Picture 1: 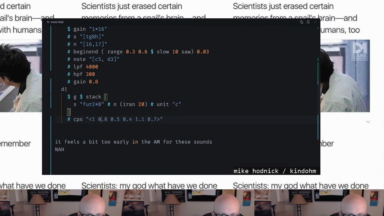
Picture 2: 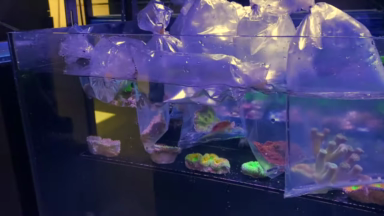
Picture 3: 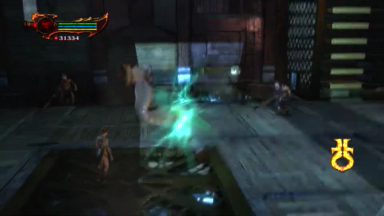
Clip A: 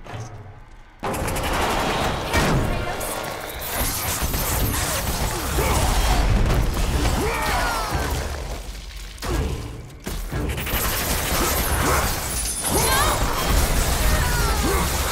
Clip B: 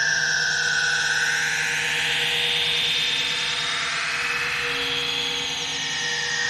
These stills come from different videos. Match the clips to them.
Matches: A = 3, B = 1